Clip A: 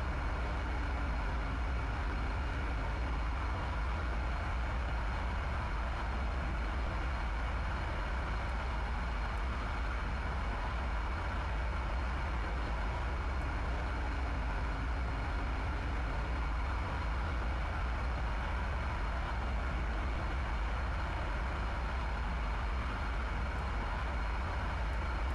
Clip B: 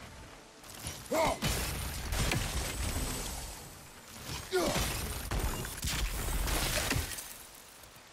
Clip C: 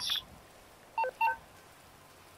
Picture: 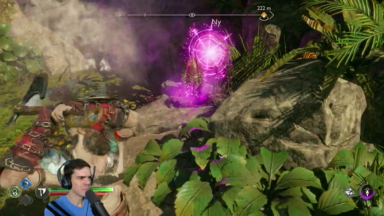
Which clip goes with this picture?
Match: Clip B